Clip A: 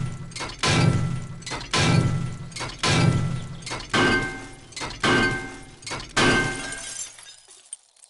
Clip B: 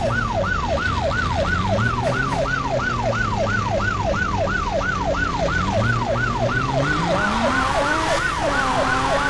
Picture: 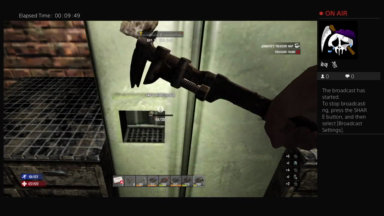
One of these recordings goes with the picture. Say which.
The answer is A